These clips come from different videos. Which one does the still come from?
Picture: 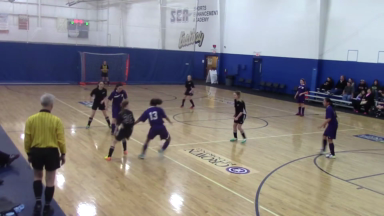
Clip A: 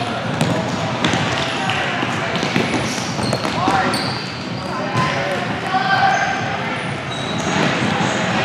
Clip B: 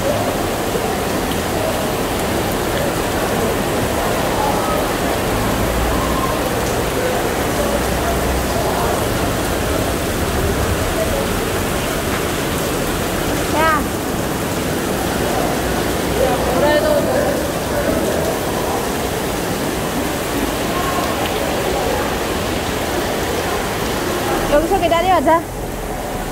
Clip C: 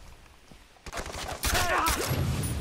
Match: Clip A